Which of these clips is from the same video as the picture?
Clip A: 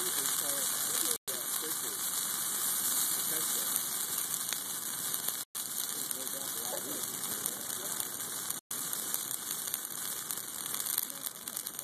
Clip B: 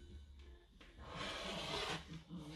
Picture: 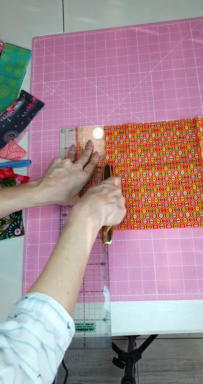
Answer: B